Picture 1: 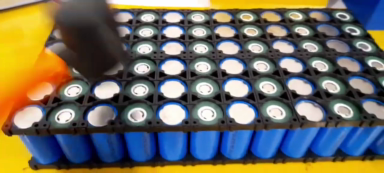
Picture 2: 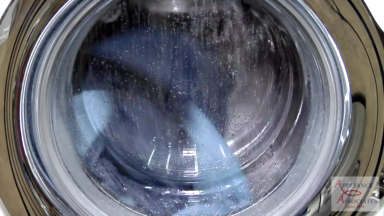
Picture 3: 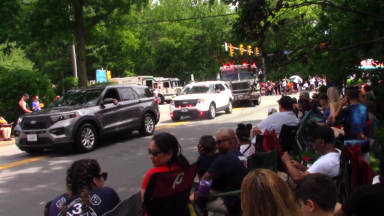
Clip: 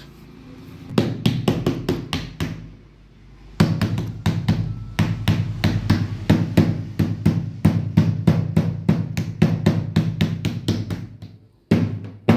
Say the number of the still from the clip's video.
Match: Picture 1